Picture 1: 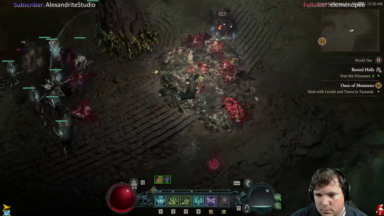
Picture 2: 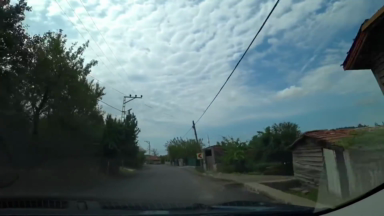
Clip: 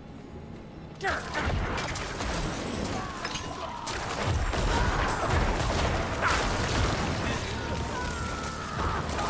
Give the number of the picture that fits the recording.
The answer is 1